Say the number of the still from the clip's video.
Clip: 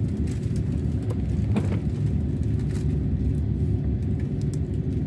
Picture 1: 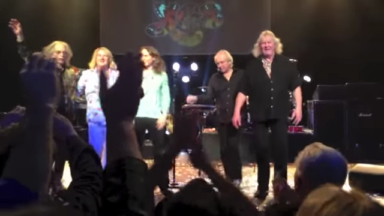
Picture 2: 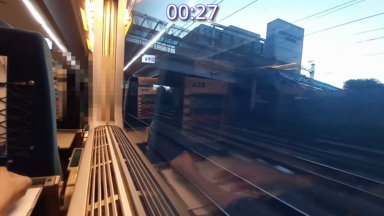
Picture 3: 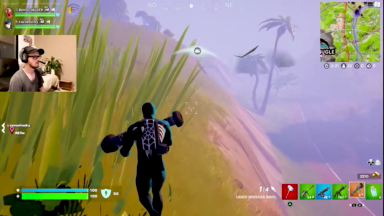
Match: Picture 2